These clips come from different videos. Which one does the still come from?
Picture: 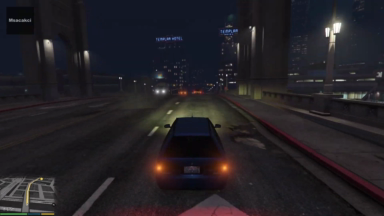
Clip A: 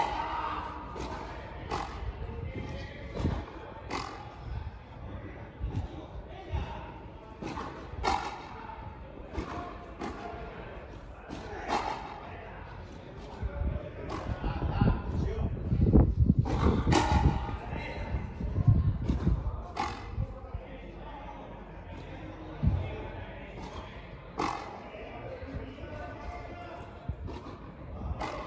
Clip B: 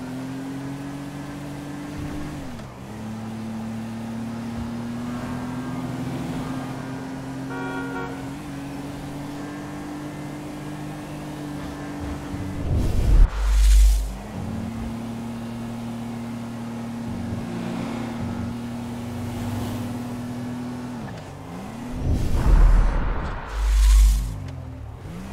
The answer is B